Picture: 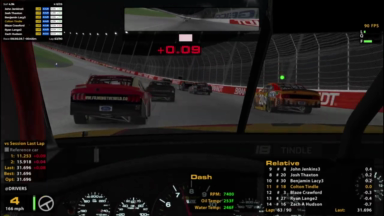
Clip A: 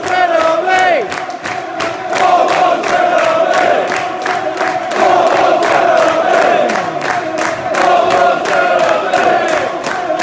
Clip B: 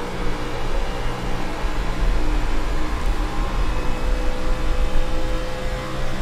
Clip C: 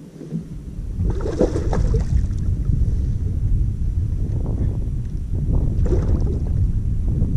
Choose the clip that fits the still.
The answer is B